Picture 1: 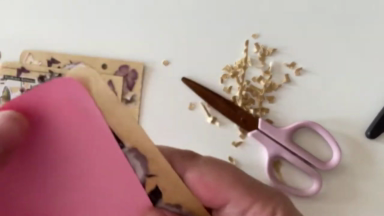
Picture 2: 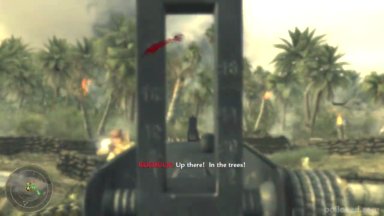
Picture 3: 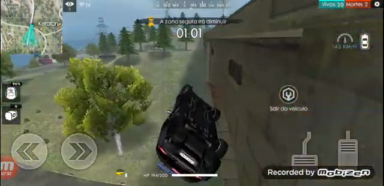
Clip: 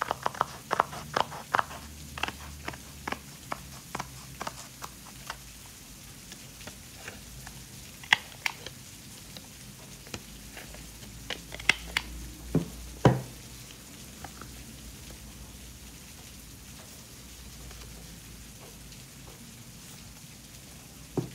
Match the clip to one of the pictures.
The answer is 1